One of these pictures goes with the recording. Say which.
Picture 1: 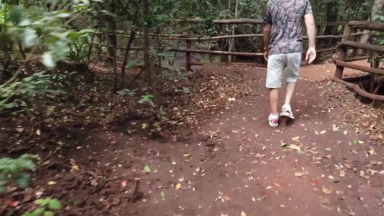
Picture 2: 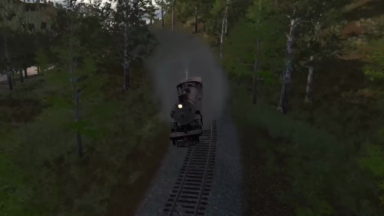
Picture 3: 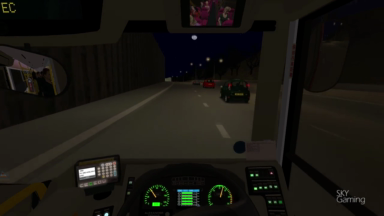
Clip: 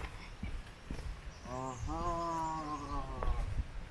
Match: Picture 1